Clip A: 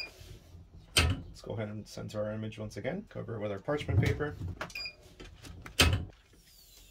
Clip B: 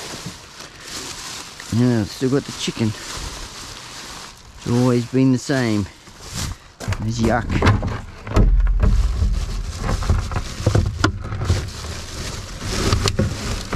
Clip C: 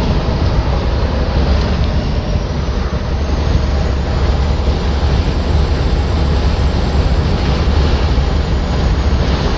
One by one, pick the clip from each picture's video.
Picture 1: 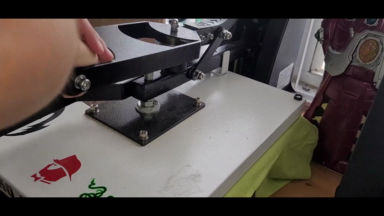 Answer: A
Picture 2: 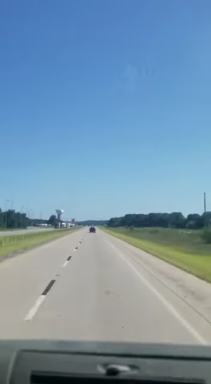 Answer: C